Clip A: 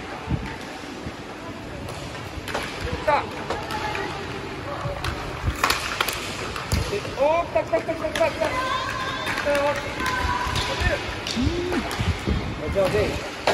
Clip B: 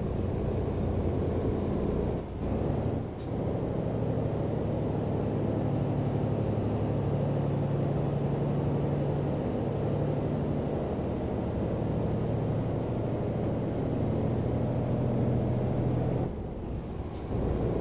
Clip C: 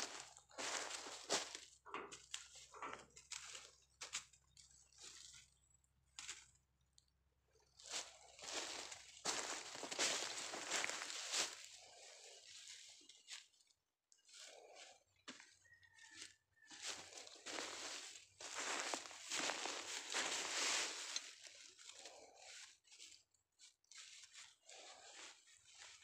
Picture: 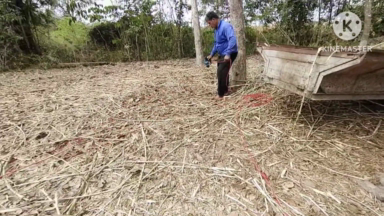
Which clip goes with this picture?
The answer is C